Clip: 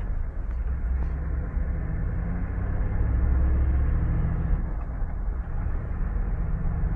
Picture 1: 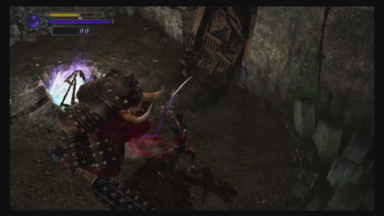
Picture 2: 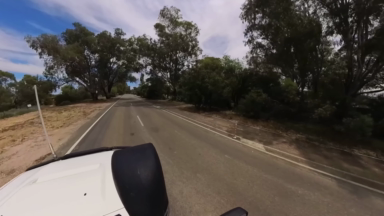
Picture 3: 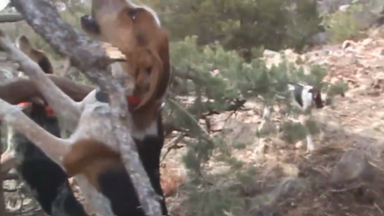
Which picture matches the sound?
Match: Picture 2